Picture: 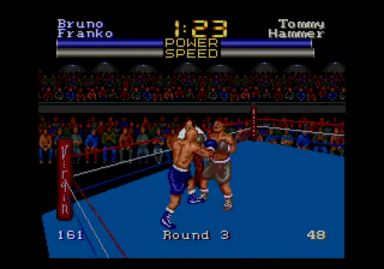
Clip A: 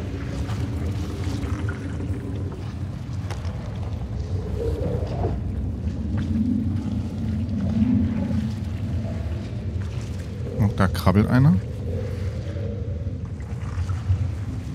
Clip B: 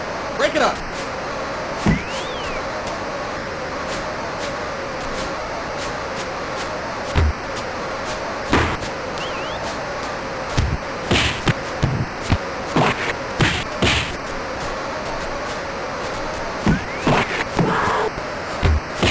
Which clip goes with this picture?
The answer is B